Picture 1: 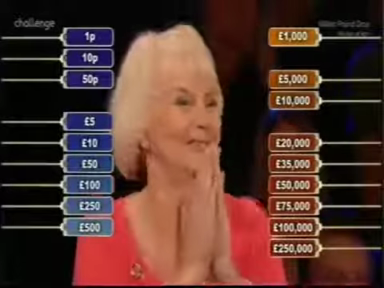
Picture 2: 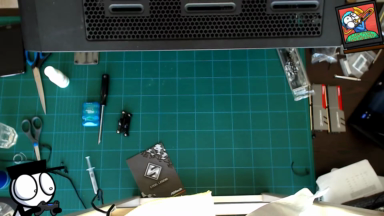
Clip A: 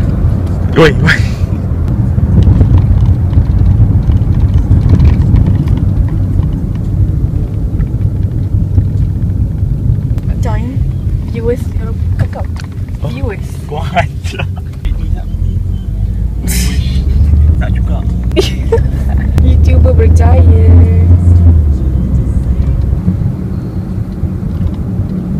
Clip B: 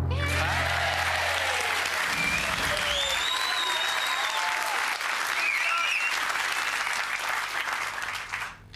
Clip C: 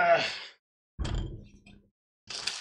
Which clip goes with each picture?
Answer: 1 B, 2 C